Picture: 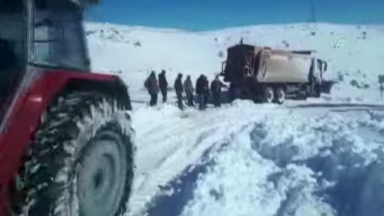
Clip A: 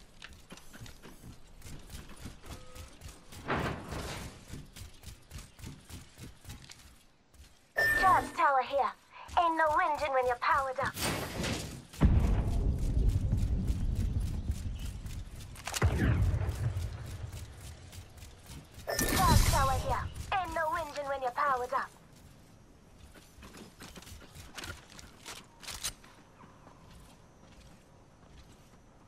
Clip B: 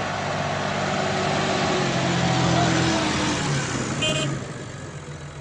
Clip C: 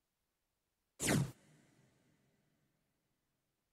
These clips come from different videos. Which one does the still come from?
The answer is B